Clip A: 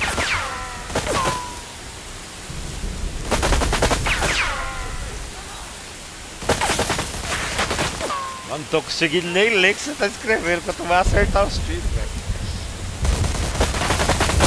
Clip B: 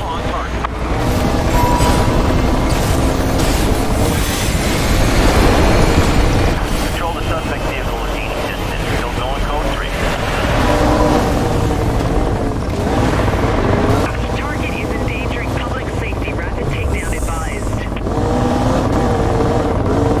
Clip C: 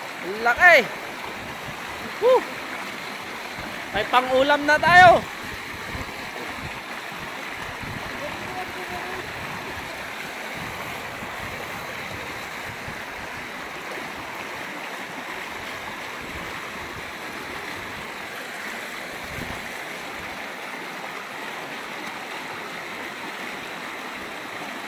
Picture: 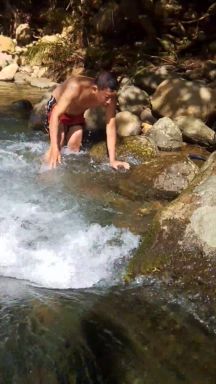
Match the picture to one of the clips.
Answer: C